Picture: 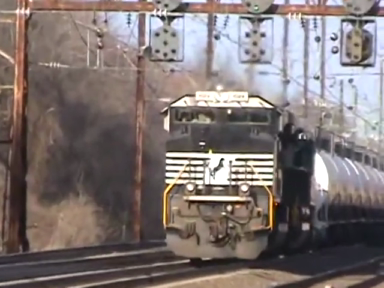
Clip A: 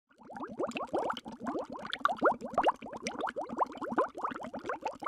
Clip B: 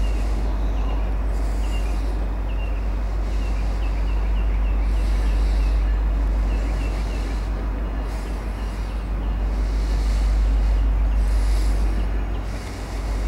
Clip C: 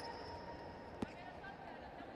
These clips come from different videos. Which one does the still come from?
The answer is B